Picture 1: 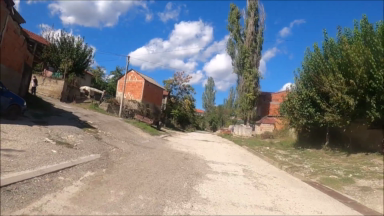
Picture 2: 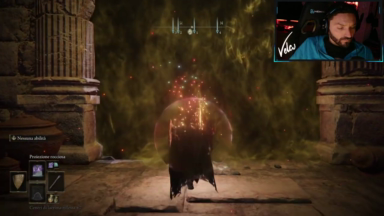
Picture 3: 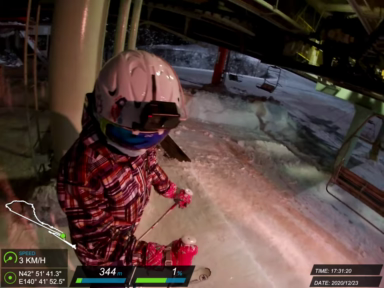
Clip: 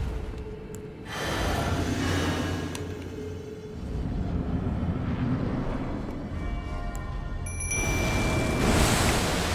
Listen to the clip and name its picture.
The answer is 2